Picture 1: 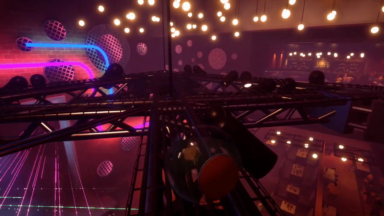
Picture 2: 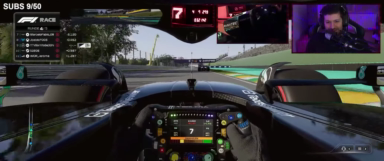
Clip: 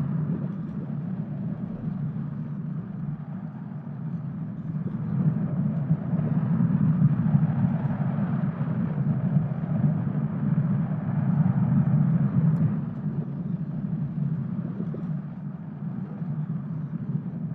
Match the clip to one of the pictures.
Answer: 1